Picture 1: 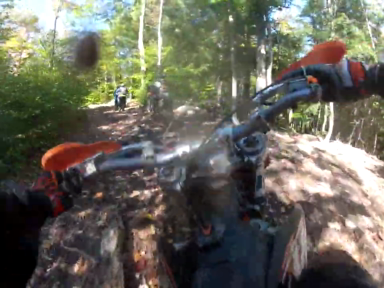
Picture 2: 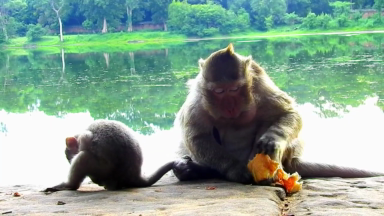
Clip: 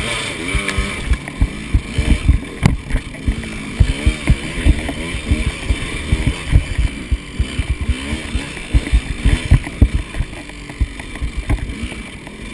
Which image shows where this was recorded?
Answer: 1